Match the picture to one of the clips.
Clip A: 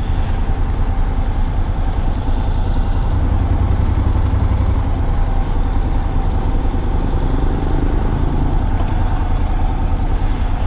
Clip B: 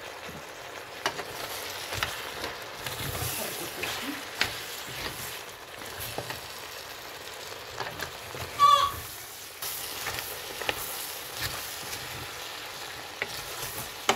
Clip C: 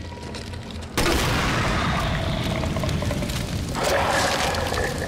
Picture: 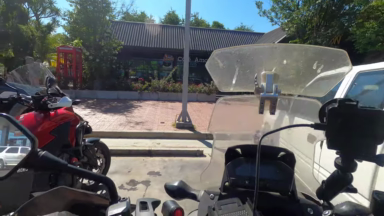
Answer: A